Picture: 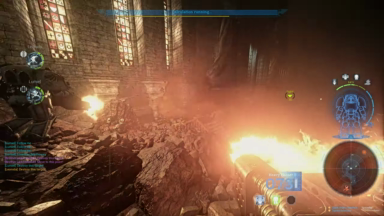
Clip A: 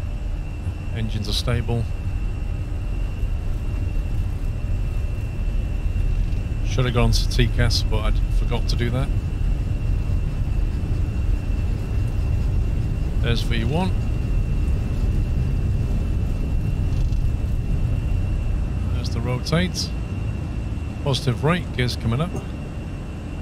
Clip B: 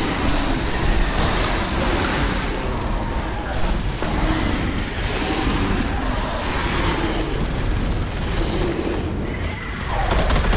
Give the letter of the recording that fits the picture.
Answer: B